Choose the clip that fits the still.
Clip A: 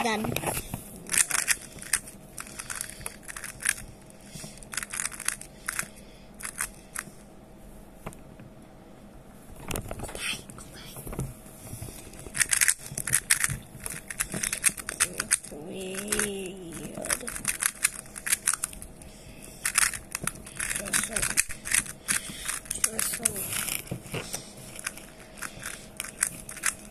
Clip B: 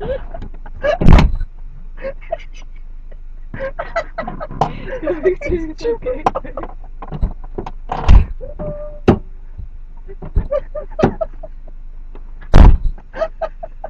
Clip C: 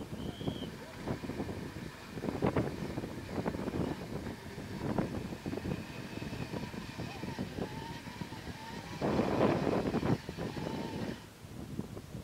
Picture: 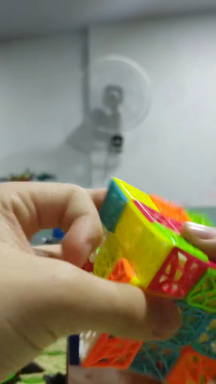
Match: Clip A